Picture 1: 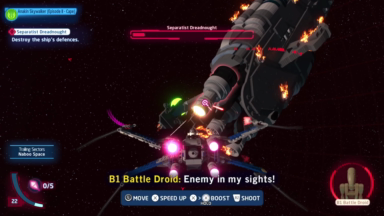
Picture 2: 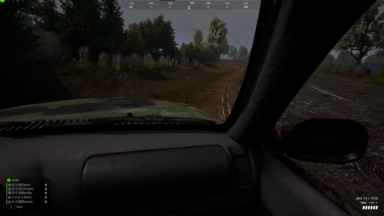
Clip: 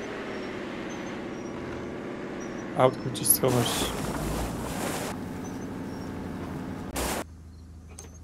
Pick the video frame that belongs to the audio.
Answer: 2